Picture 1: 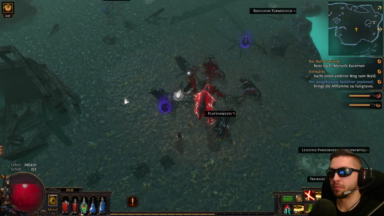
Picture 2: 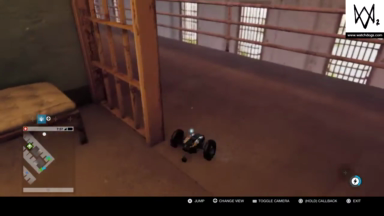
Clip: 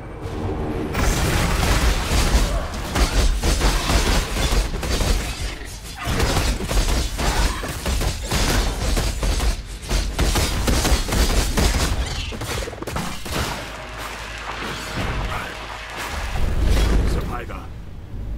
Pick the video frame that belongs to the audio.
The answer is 1